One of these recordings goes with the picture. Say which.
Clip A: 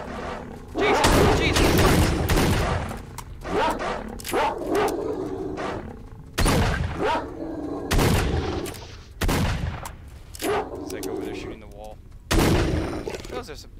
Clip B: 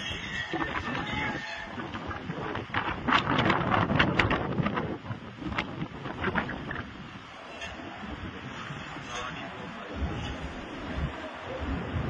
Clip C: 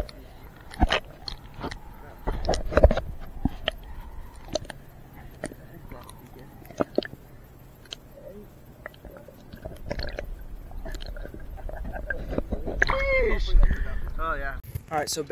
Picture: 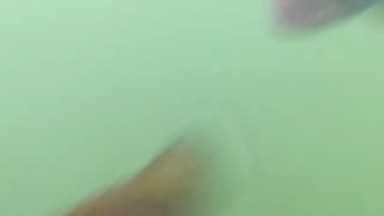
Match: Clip C